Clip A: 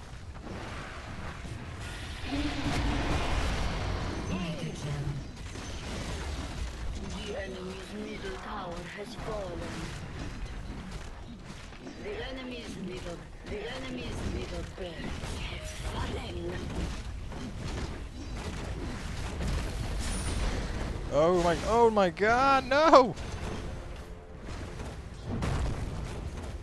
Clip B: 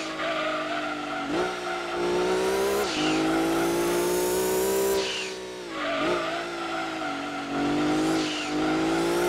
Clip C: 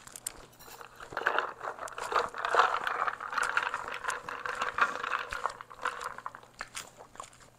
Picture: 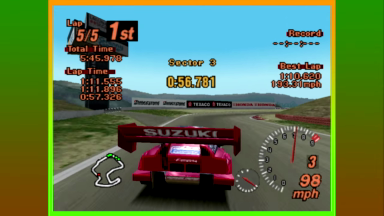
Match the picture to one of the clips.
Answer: B